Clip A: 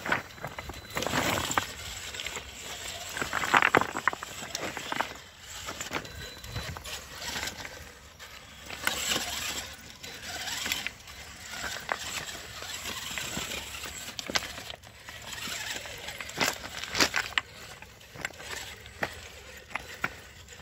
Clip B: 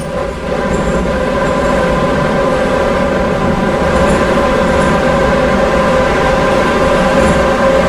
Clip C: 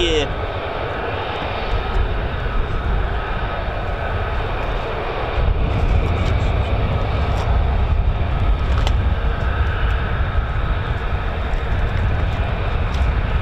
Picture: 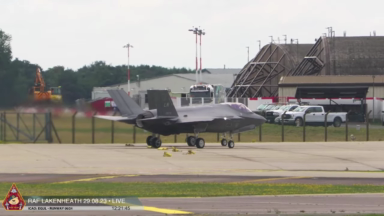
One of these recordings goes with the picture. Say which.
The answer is C